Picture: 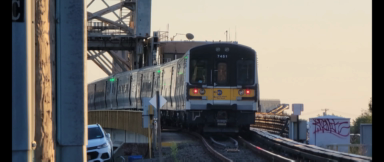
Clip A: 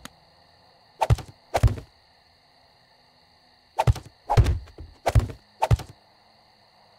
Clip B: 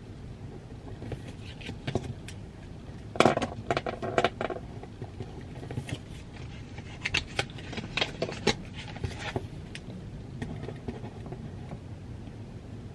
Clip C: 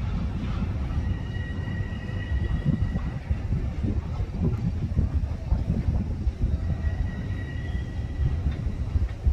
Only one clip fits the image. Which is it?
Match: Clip C